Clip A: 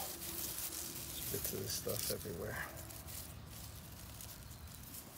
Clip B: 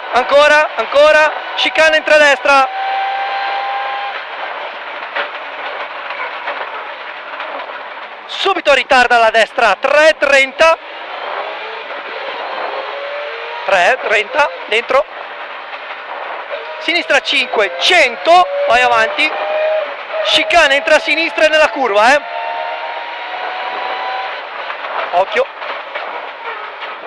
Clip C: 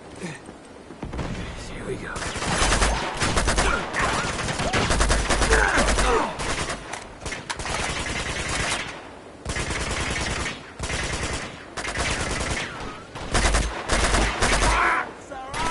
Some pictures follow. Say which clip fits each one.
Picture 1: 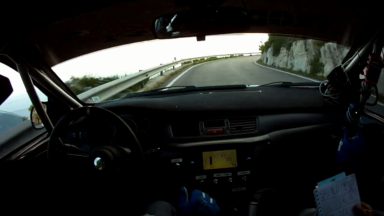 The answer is B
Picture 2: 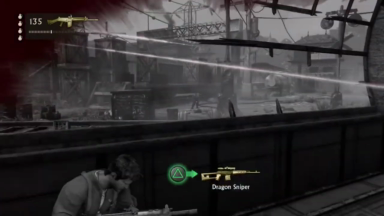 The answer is C